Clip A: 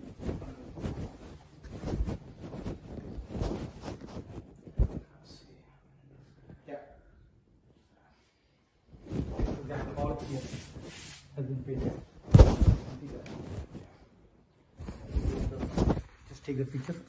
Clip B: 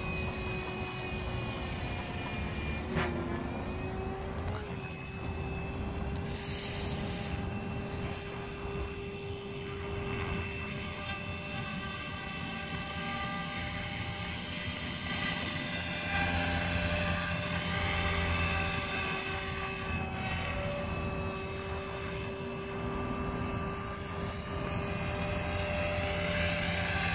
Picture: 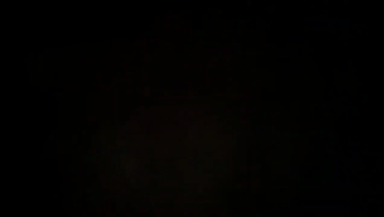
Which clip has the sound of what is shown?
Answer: A